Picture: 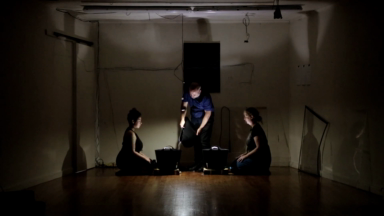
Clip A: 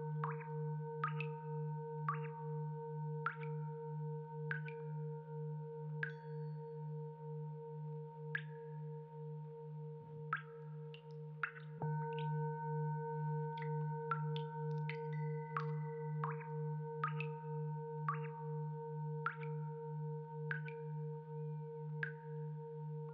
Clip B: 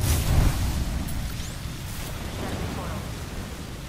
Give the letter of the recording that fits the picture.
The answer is A